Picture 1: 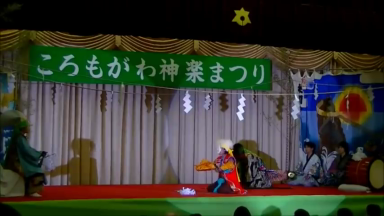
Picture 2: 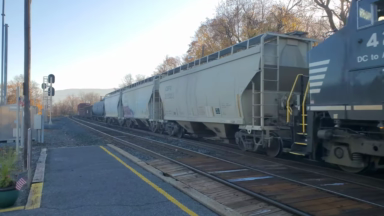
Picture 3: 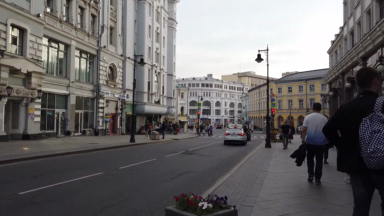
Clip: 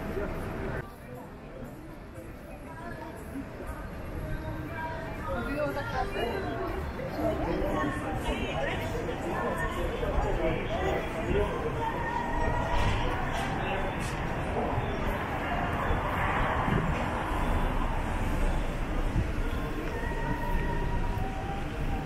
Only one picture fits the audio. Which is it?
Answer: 3